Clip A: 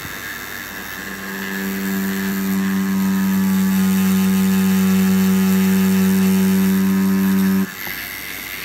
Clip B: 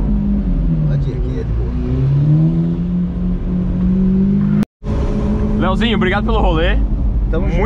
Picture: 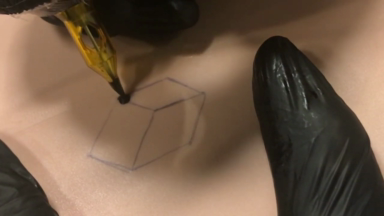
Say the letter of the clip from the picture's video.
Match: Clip A